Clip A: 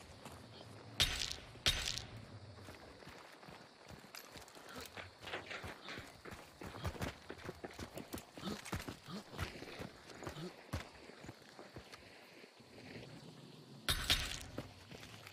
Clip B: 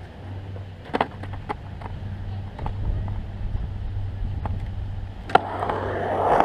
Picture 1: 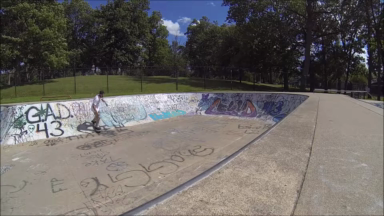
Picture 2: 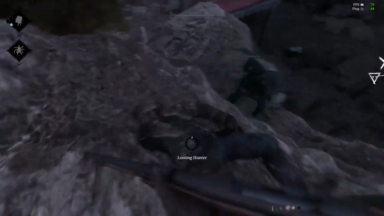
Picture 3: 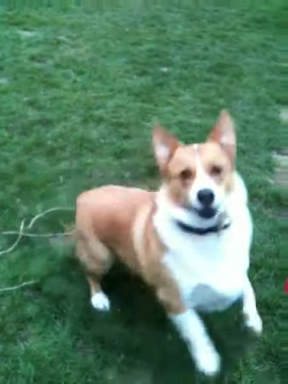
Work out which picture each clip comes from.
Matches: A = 2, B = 1